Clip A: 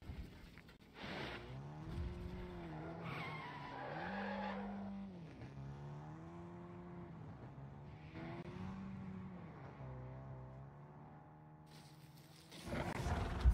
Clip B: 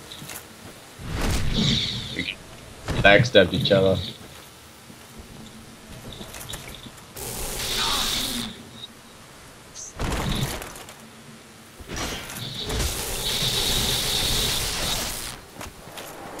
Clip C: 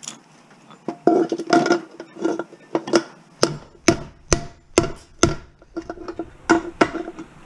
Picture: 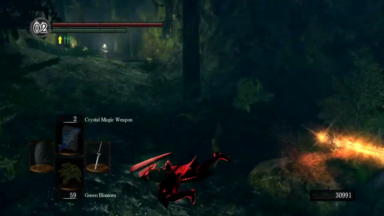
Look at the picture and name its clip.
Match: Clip B